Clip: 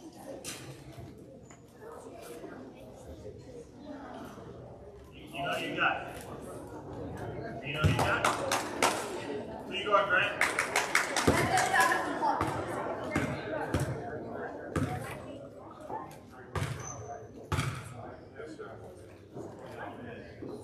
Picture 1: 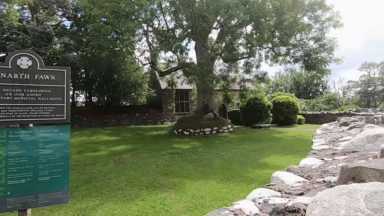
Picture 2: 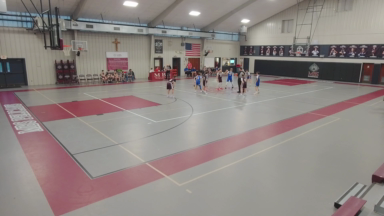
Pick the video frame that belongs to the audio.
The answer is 2